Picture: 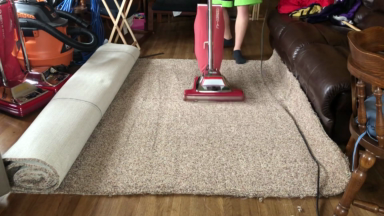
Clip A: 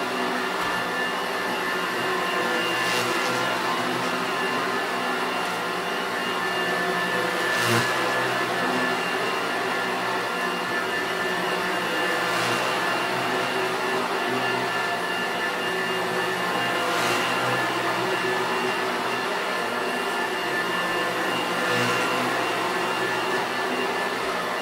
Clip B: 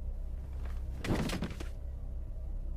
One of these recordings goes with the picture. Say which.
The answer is A